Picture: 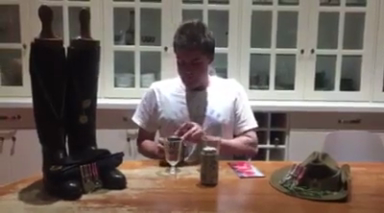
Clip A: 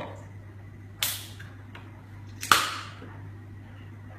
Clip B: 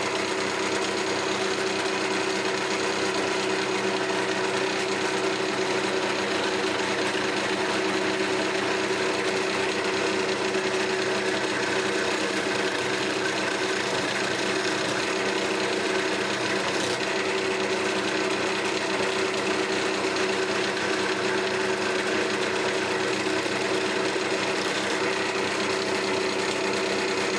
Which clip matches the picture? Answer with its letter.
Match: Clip A